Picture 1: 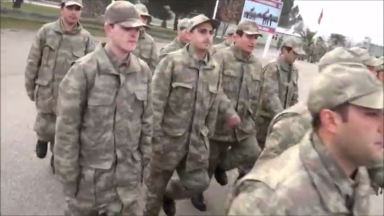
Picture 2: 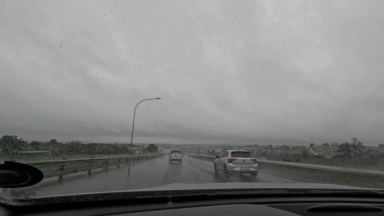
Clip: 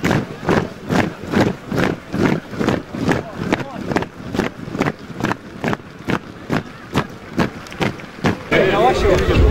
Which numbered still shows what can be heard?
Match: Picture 1